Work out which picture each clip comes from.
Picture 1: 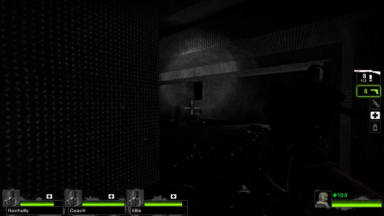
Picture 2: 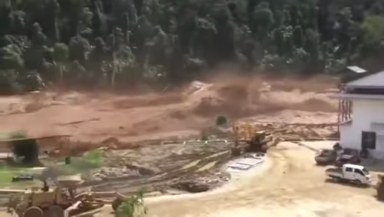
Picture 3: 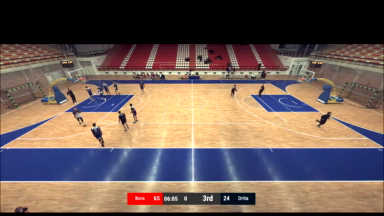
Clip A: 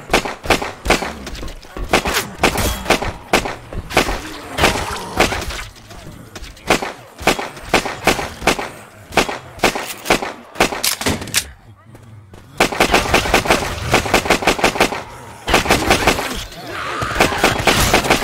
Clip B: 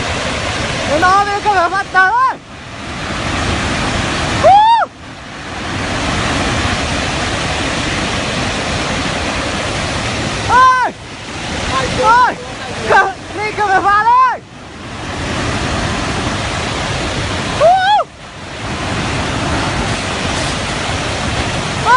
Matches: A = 1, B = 2